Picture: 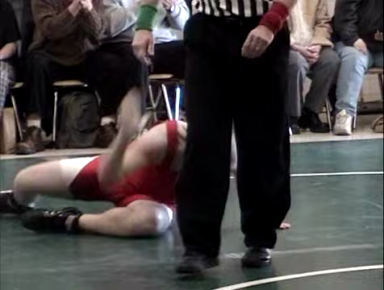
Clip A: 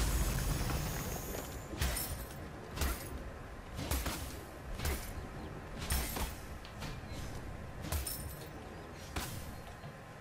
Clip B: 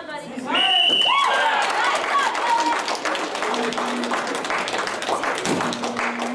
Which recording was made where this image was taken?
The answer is B